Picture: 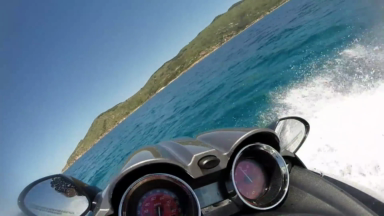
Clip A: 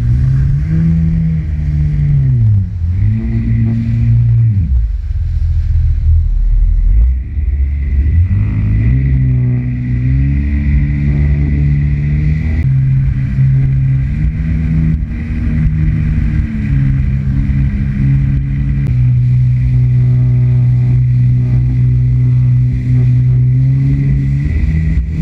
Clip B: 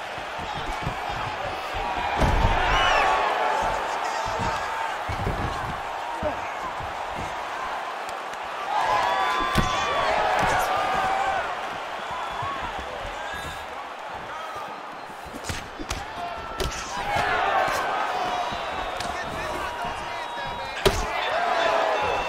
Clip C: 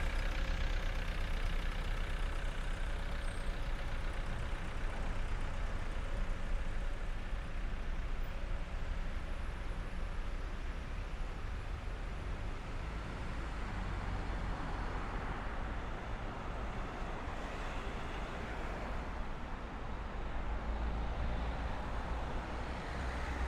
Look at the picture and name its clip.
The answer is A